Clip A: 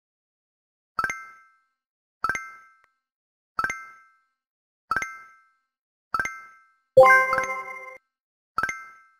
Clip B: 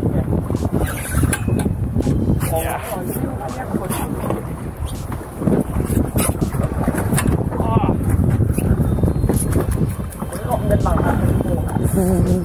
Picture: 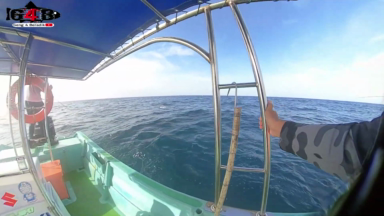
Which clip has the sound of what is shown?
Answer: B